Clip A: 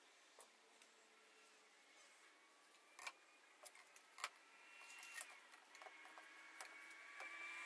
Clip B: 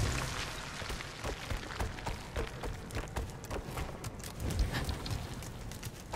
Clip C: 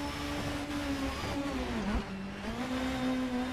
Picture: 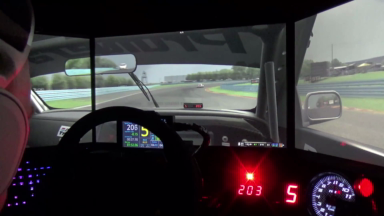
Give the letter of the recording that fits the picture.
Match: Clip C